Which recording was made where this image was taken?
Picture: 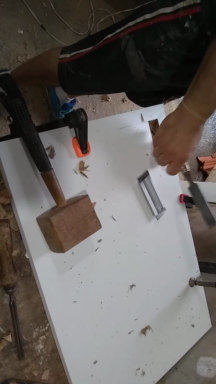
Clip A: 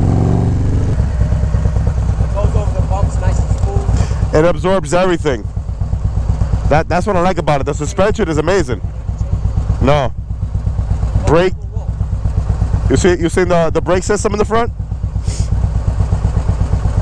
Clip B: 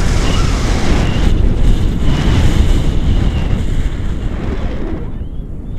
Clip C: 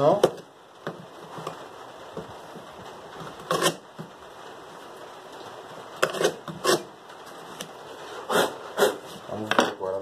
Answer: C